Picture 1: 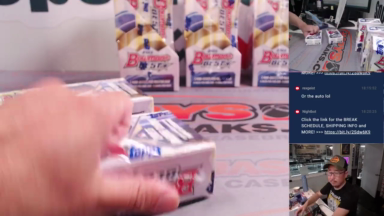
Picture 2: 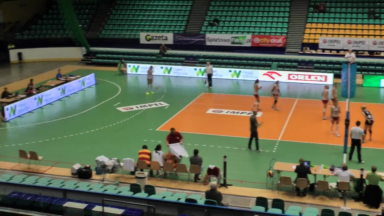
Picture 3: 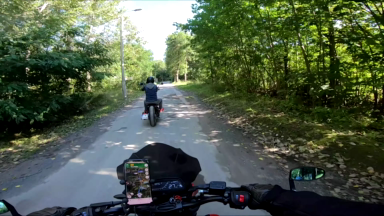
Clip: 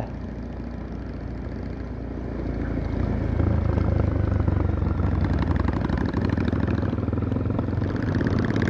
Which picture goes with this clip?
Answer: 3